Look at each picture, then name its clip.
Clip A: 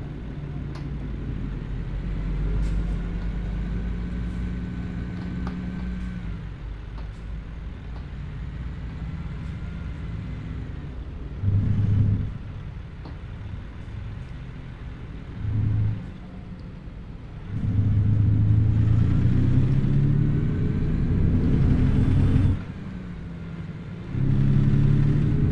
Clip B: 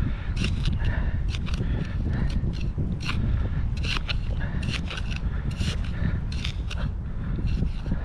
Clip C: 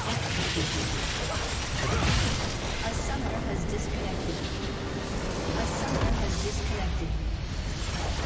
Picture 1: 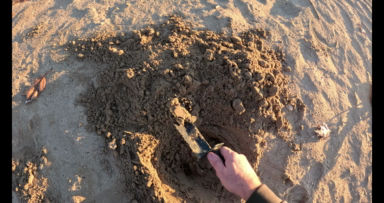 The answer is B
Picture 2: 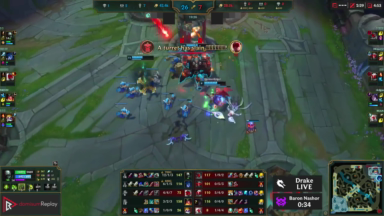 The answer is C